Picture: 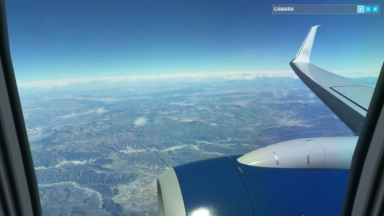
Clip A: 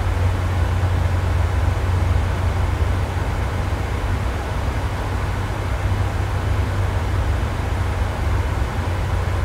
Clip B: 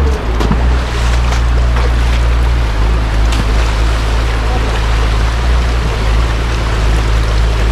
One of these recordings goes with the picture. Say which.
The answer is A